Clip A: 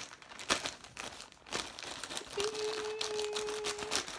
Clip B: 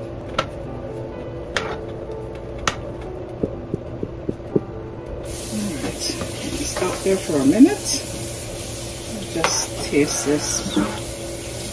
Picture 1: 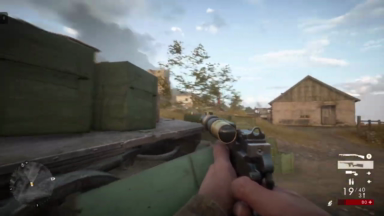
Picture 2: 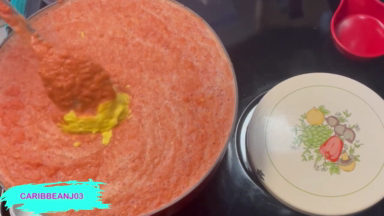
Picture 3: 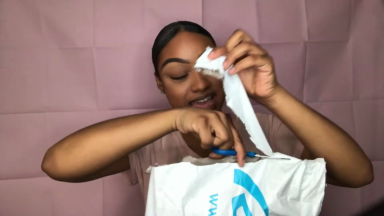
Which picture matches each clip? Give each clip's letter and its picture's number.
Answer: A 3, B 2